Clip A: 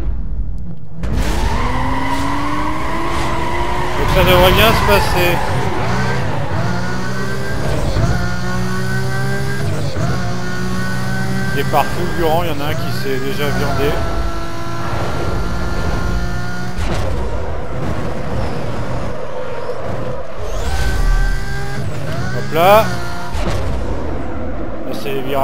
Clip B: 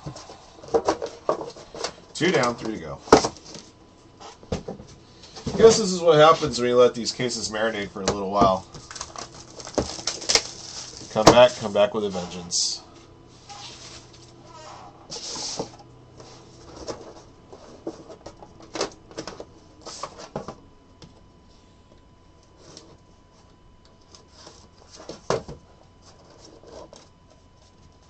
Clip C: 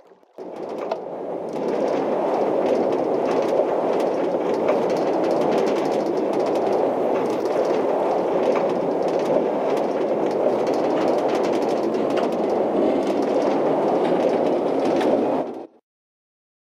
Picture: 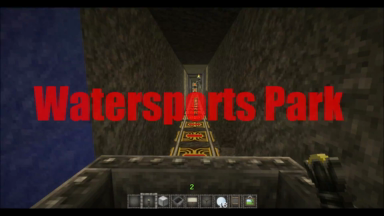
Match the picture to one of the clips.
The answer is C